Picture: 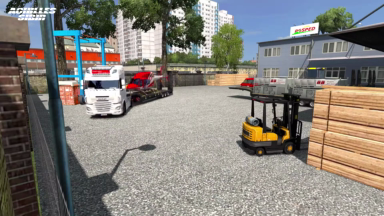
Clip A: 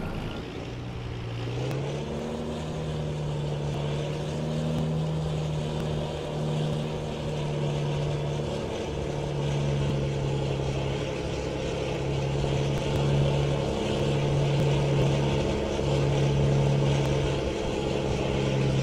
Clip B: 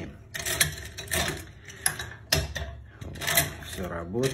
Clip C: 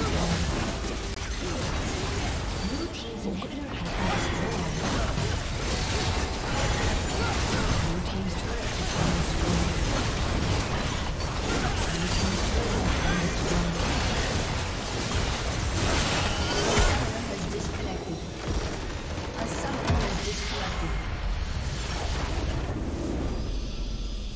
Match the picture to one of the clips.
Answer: A